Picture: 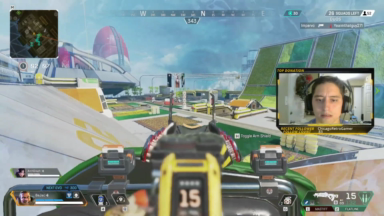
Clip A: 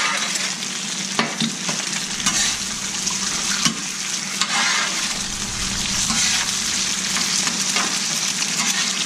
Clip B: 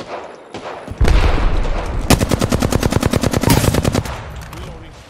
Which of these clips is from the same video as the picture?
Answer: B